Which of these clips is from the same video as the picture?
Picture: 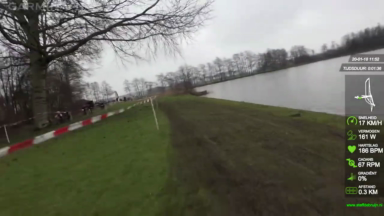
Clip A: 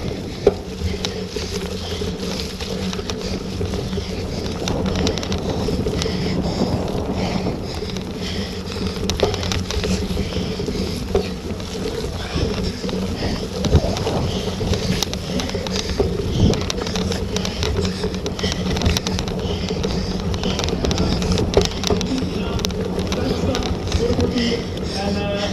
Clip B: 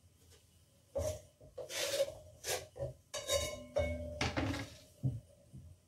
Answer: A